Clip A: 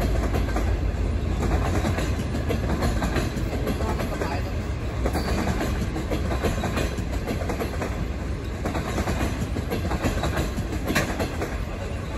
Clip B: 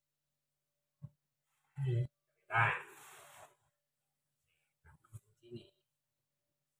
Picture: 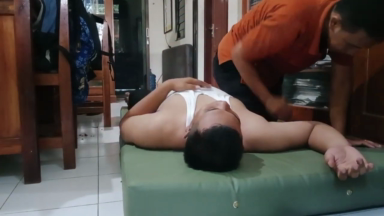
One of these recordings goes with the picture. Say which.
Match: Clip B